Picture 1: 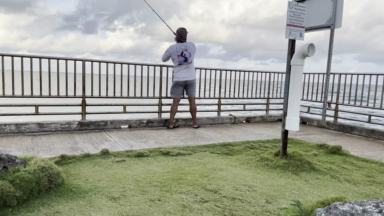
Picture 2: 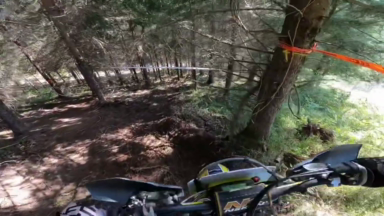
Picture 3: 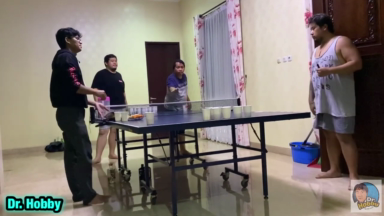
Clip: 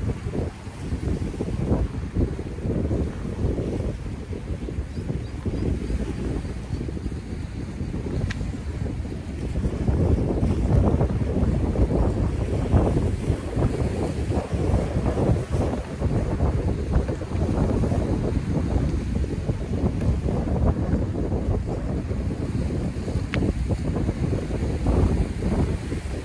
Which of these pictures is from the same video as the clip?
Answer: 1